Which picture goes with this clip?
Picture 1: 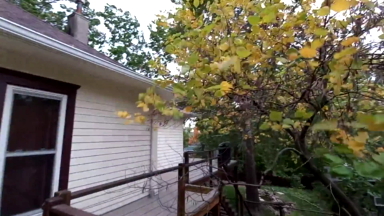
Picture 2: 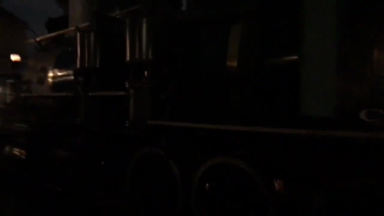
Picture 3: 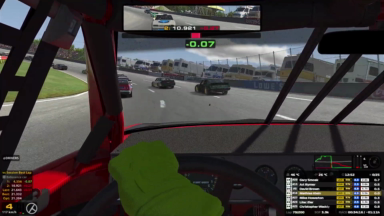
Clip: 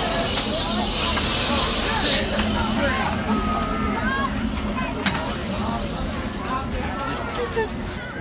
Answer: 2